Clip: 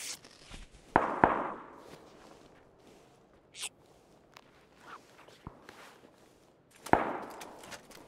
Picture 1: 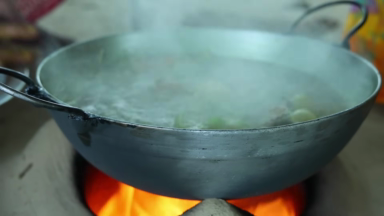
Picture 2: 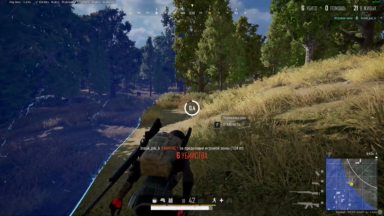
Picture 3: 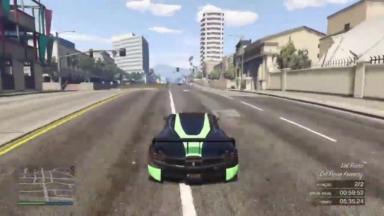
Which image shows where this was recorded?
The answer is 2